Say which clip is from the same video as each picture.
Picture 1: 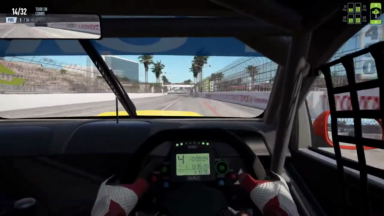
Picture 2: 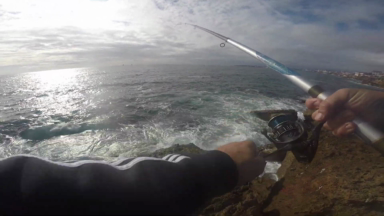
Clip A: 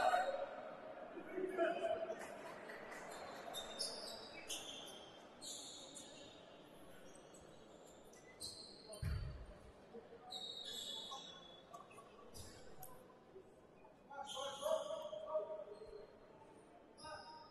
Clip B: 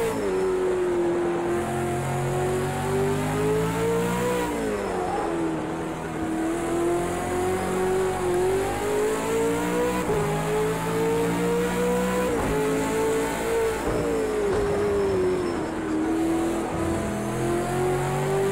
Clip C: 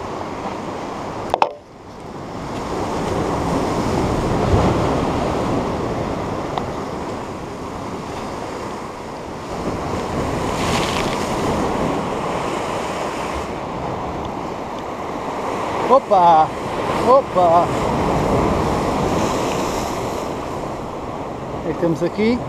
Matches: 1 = B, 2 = C